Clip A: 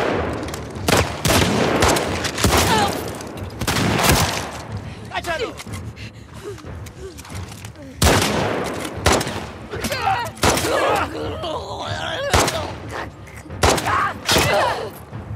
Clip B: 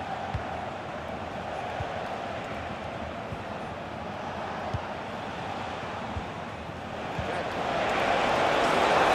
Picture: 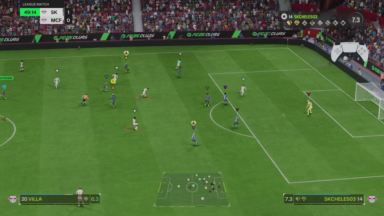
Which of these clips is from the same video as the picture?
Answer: B